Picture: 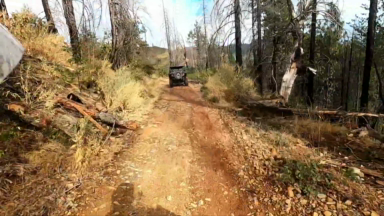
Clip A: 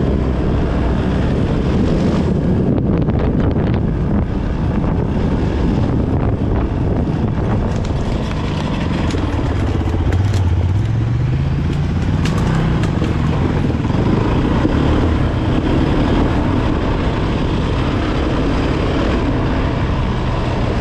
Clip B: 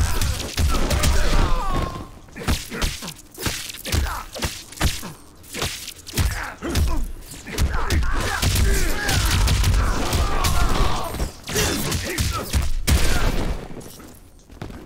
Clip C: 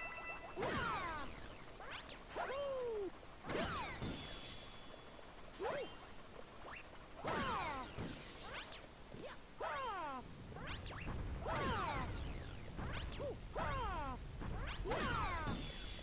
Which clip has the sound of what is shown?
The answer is A